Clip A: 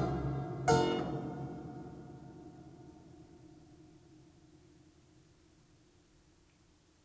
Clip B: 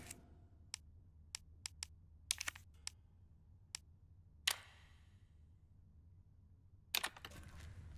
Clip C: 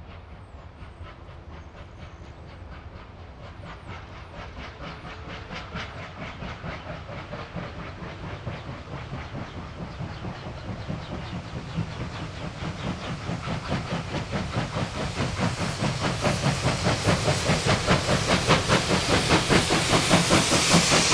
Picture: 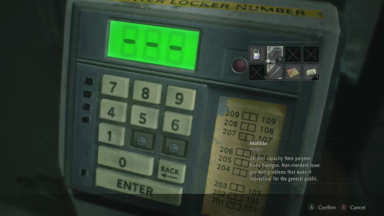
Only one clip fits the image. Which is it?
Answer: B